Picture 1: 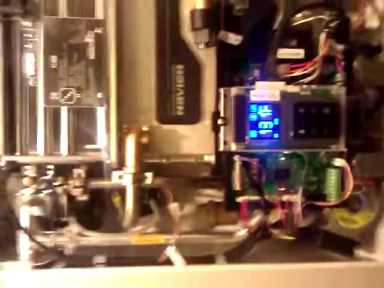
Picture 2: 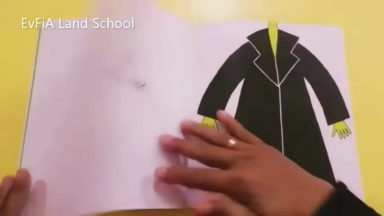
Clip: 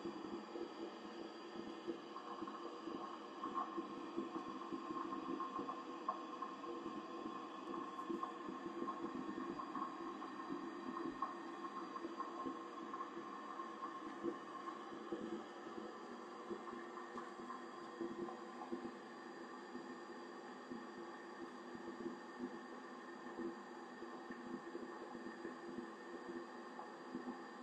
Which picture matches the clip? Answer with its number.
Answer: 1